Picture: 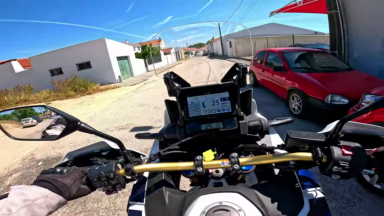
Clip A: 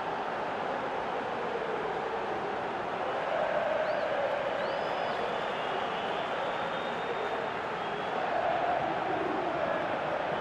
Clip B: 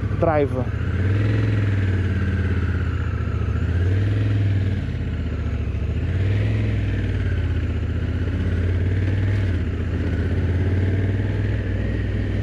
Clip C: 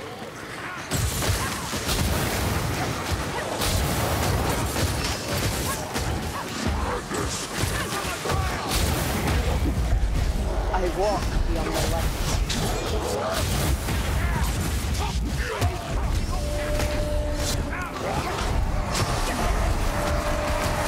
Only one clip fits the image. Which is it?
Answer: B